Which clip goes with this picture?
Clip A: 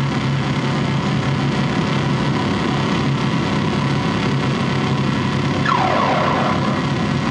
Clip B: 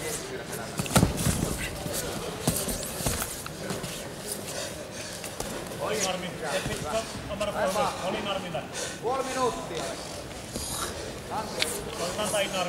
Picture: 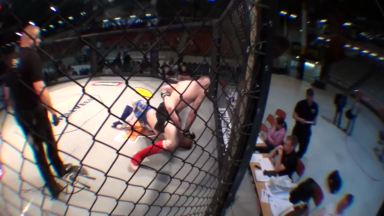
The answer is B